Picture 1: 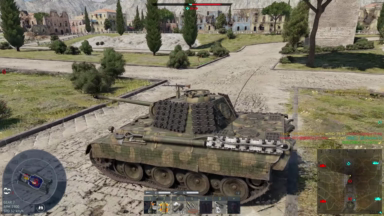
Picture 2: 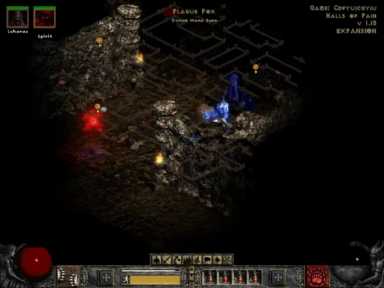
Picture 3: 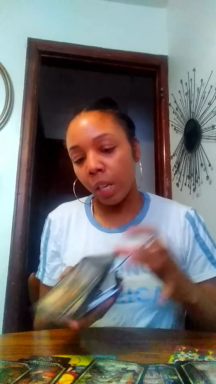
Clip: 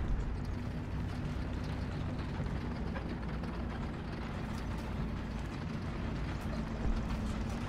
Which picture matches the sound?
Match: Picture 1